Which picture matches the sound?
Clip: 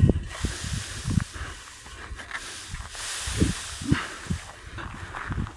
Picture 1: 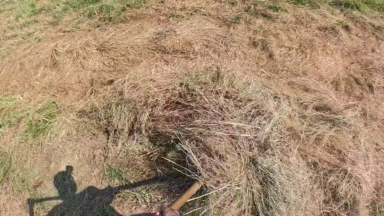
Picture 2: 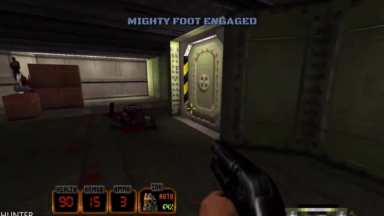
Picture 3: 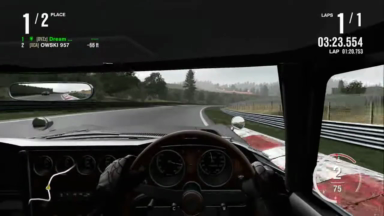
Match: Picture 1